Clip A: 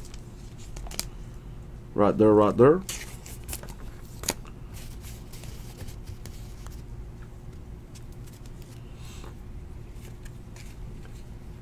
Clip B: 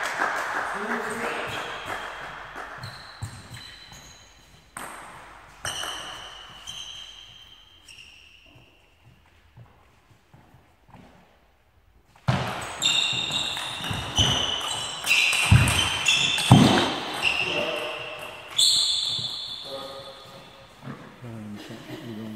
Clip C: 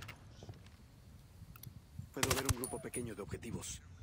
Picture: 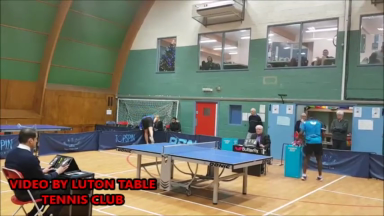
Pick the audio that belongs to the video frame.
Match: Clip B